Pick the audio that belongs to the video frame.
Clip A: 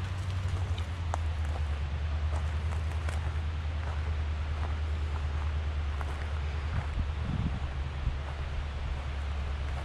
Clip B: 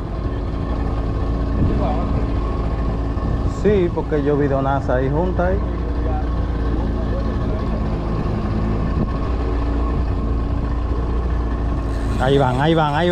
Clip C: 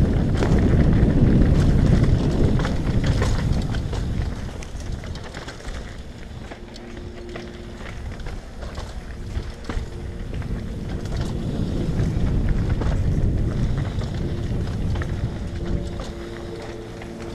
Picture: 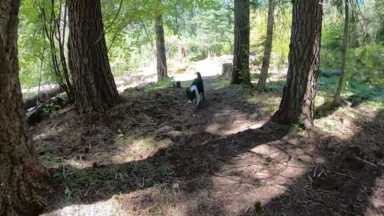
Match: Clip A